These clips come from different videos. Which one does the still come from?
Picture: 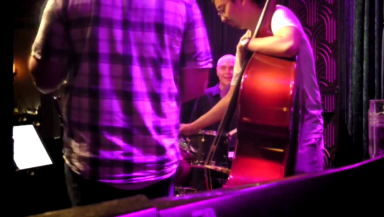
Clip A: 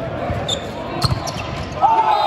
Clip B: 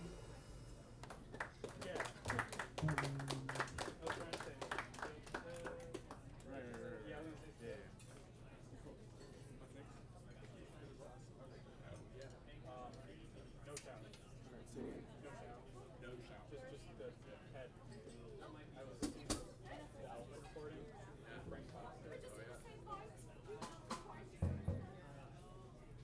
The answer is B